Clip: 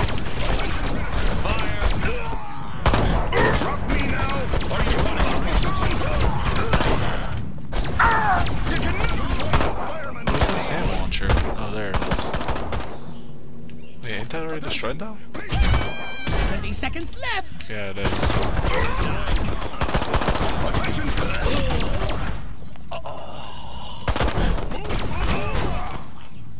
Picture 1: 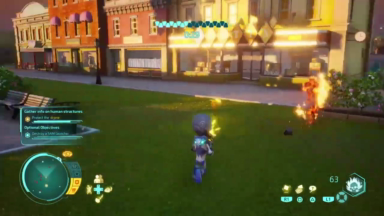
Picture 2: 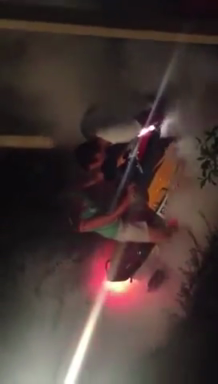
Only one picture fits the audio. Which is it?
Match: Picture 1